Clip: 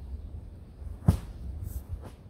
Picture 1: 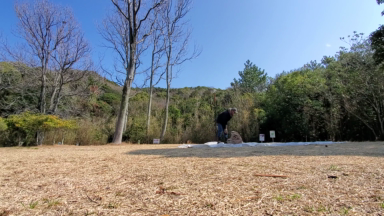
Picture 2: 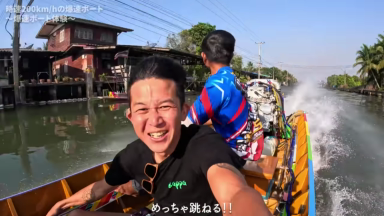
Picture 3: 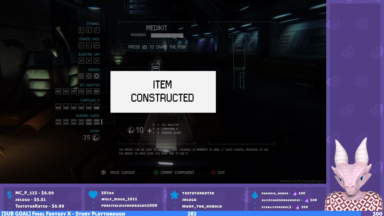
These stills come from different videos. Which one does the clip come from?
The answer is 1